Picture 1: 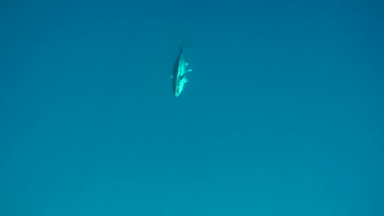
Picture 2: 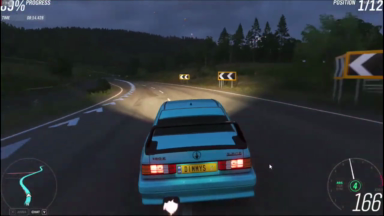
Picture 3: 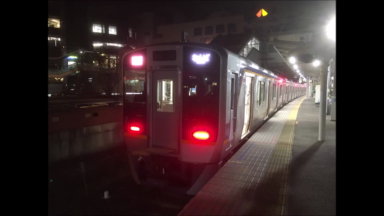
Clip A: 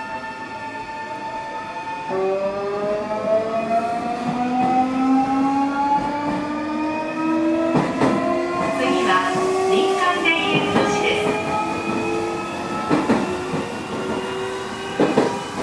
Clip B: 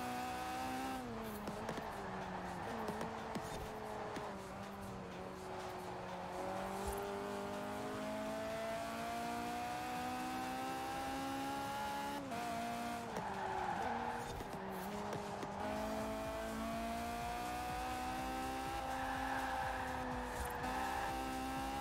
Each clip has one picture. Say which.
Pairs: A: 3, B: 2